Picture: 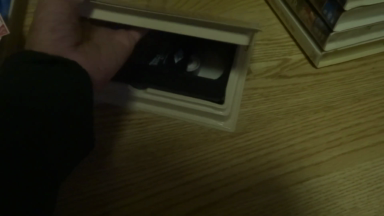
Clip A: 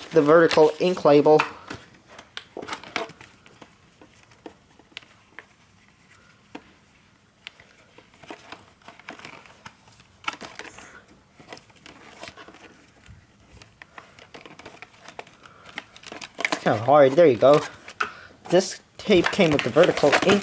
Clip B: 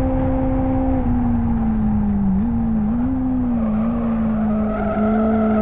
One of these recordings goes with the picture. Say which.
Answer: A